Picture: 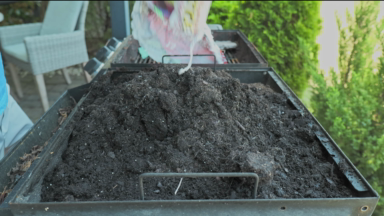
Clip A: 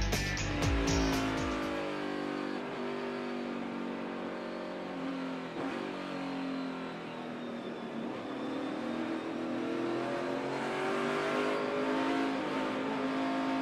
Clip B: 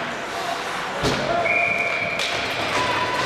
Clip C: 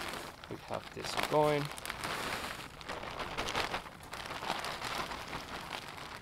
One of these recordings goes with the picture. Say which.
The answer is C